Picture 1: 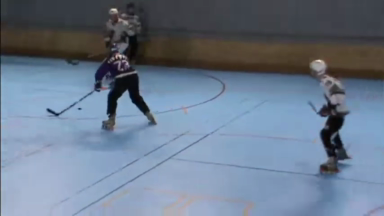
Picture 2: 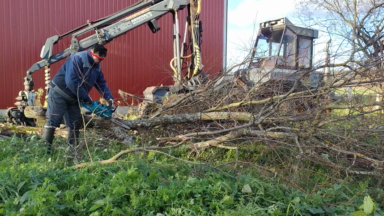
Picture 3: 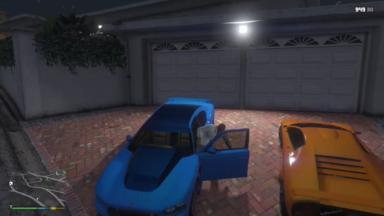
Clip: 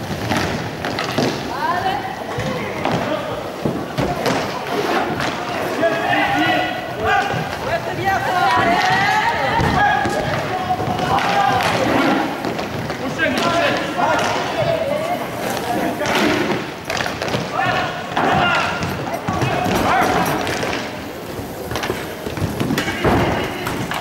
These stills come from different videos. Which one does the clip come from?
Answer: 1